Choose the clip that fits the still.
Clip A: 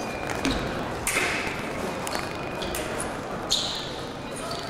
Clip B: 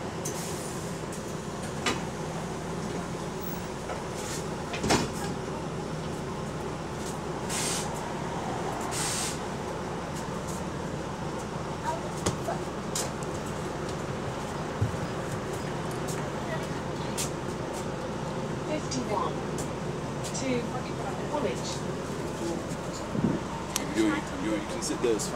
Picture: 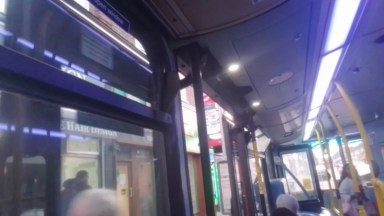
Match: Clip B